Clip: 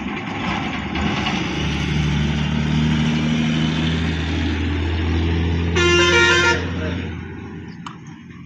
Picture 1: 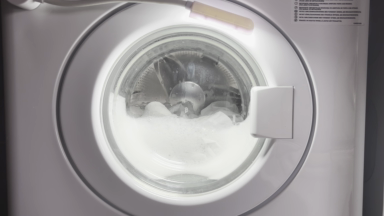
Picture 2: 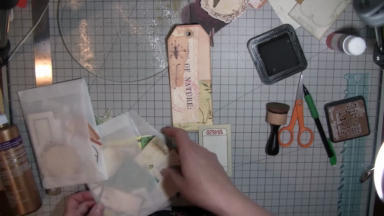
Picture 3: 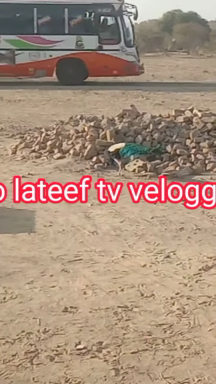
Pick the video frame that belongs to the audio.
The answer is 3